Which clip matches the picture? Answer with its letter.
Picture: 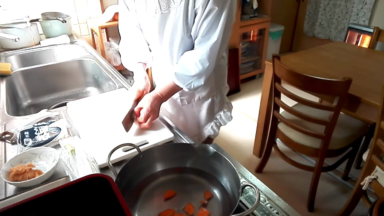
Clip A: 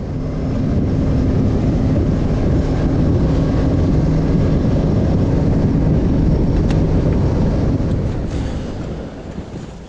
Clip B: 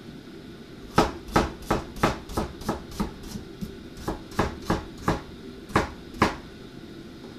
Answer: B